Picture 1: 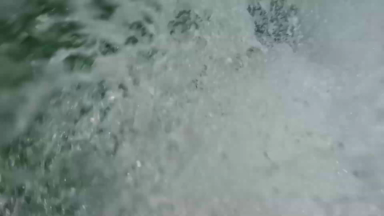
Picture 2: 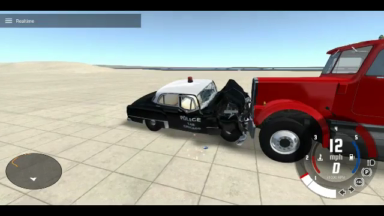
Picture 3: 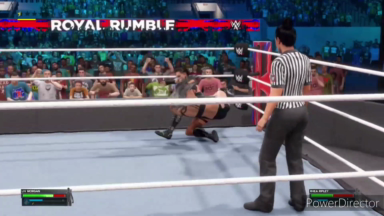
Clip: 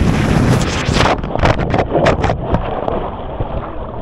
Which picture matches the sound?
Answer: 1